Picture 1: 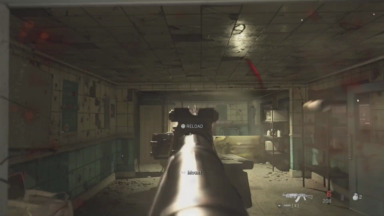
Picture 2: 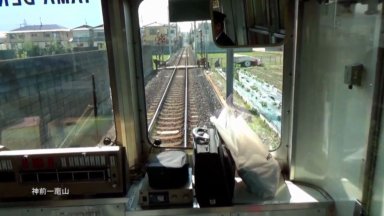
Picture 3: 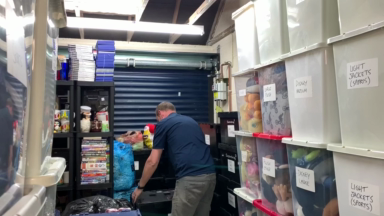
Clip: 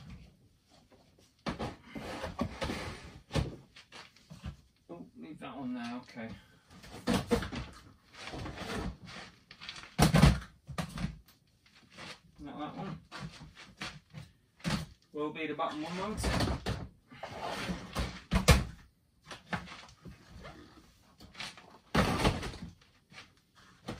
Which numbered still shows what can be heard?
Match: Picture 3